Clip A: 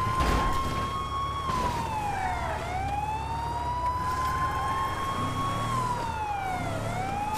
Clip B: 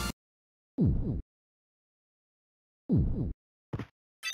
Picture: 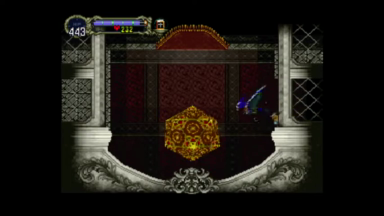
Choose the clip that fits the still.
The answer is B